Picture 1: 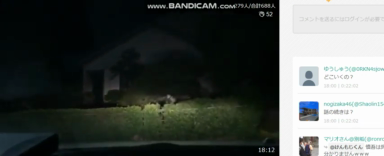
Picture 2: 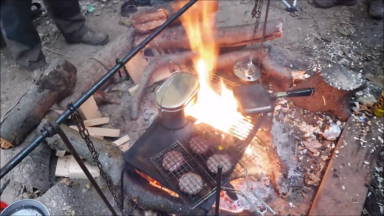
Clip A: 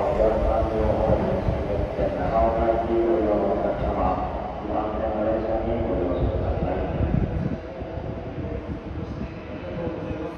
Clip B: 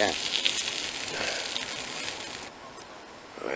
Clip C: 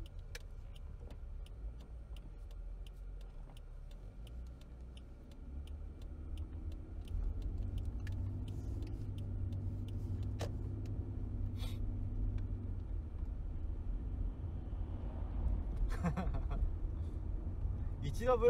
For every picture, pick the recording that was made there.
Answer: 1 C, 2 B